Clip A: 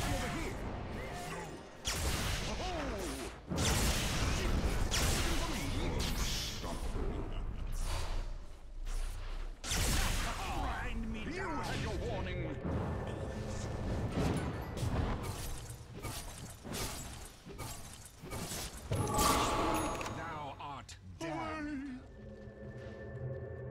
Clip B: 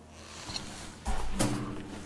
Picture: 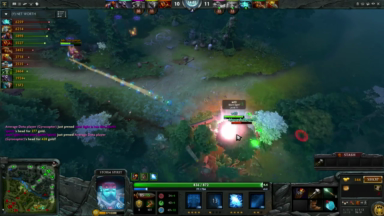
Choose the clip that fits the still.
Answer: A